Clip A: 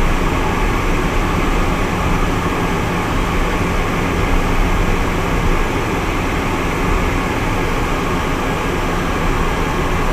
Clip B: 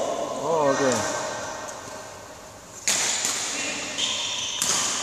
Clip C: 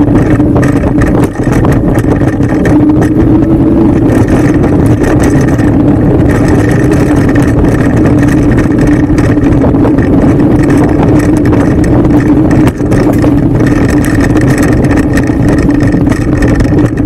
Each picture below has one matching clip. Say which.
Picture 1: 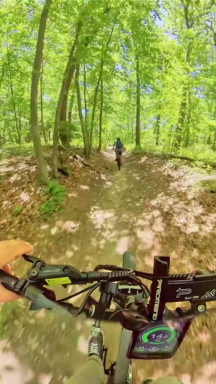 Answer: C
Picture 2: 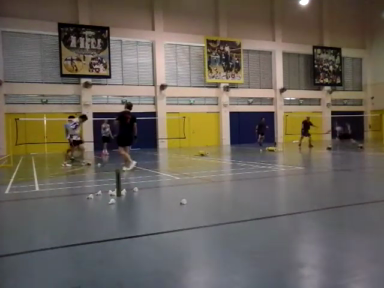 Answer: B